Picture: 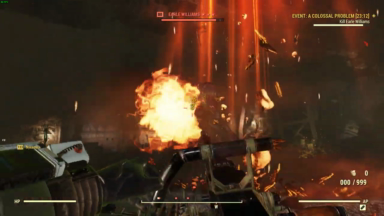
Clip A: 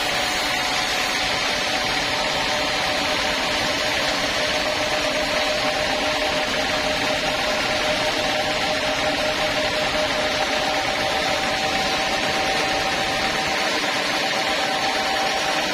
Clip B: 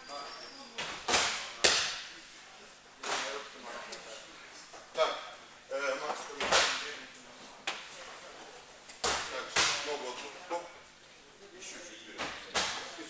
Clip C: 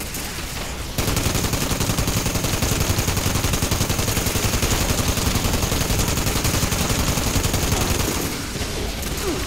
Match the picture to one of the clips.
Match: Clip C